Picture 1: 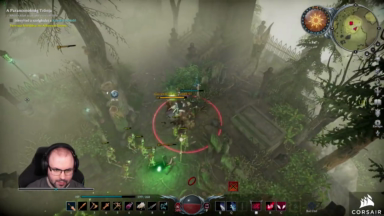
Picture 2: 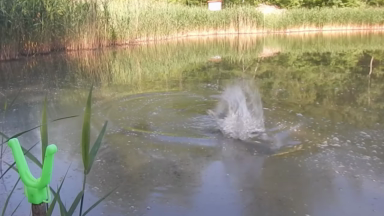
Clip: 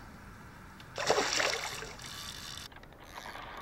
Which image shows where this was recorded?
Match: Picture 2